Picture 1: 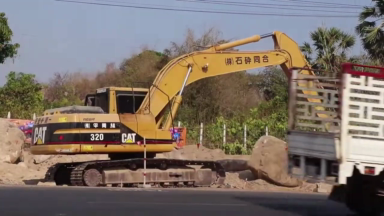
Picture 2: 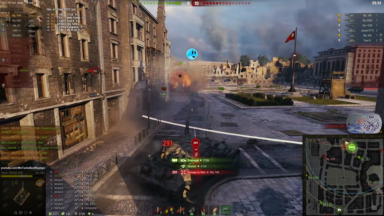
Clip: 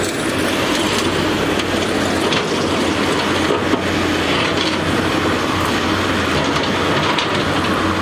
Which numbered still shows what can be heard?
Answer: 1